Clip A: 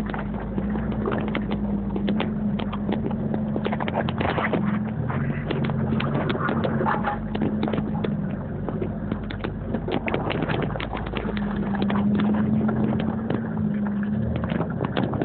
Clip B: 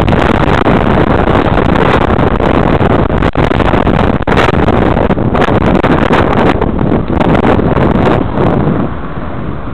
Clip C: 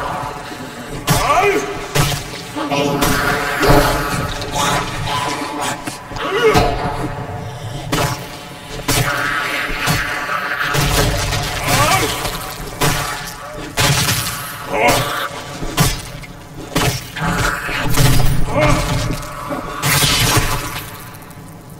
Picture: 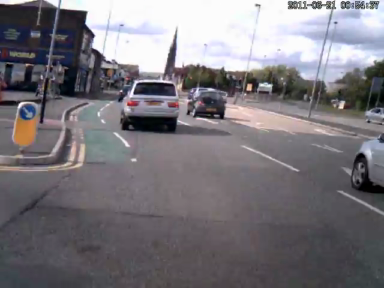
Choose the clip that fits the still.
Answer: B